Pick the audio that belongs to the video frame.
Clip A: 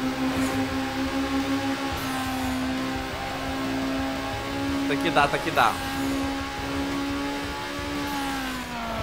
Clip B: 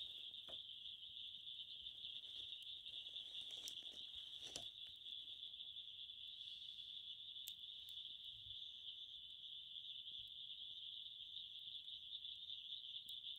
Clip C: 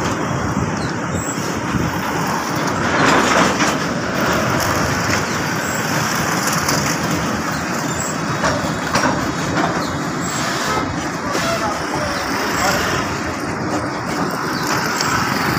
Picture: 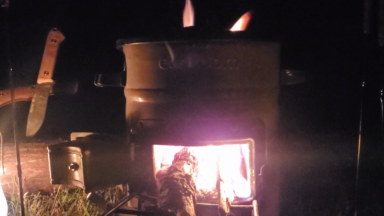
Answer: B